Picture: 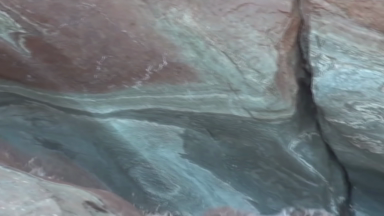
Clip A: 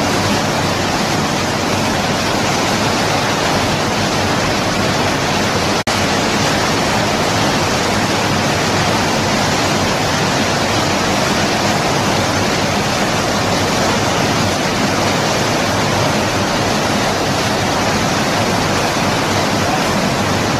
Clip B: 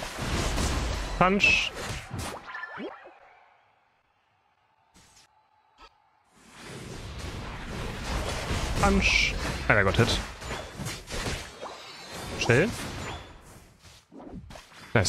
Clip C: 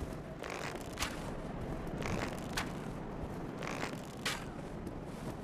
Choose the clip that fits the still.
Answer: A